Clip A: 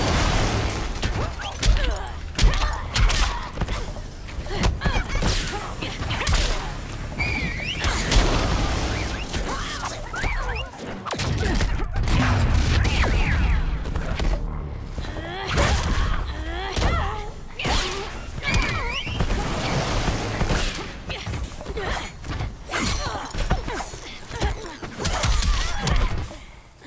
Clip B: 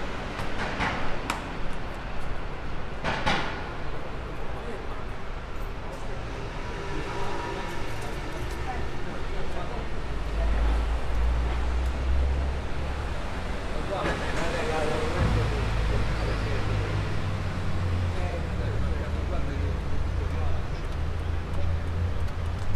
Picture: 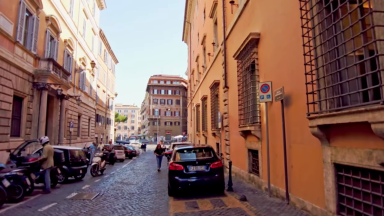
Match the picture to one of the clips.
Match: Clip B